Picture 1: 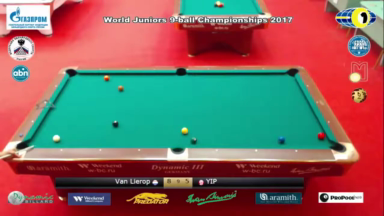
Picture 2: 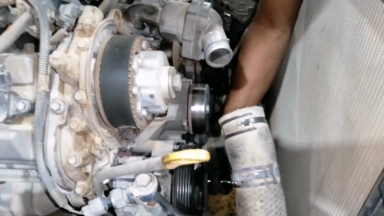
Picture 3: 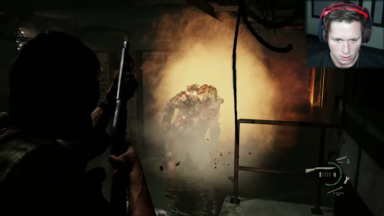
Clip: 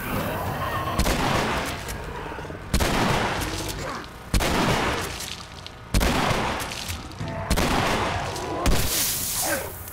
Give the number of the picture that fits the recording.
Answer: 3